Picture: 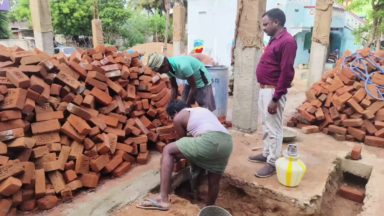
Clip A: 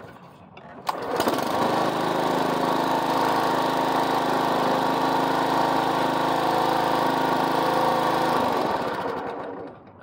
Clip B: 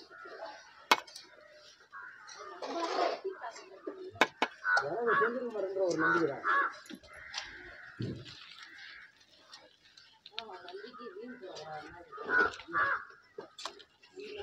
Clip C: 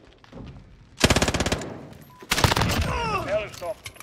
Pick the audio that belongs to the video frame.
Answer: B